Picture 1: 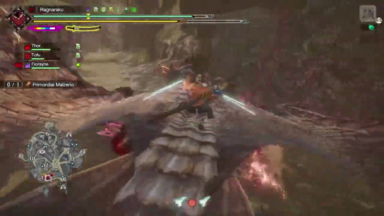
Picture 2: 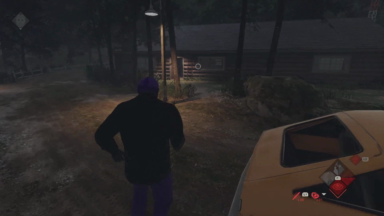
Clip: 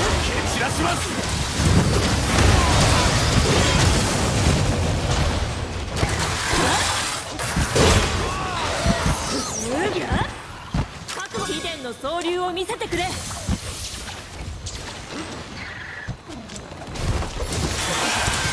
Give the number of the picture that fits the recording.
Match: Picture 1